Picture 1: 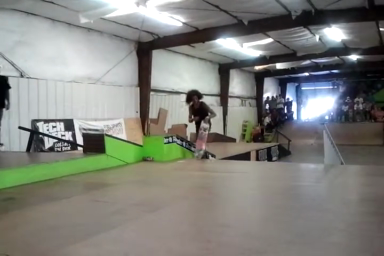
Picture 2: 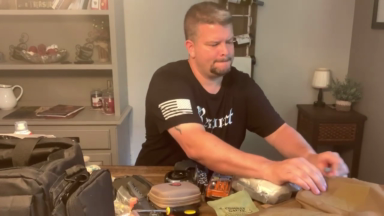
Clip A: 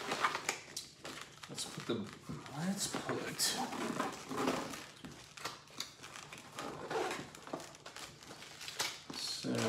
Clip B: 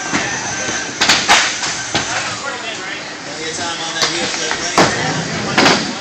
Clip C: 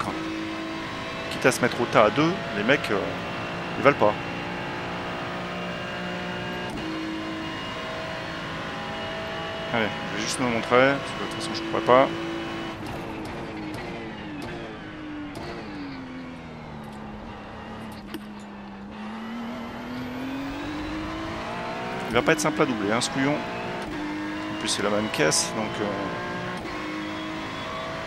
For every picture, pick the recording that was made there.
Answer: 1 B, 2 A